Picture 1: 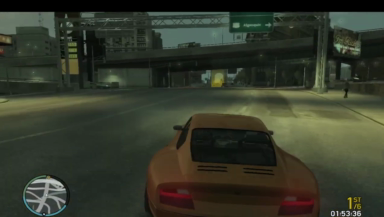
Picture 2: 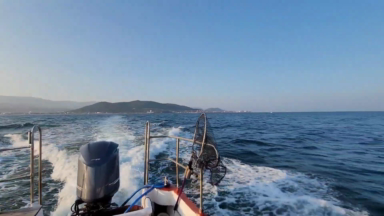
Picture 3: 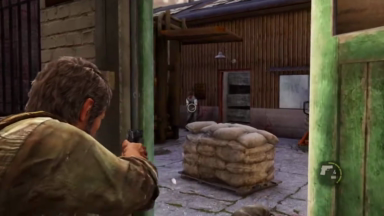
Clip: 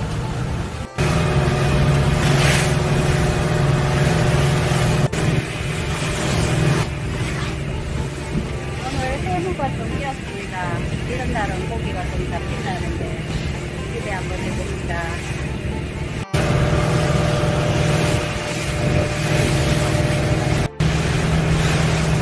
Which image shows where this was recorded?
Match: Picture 2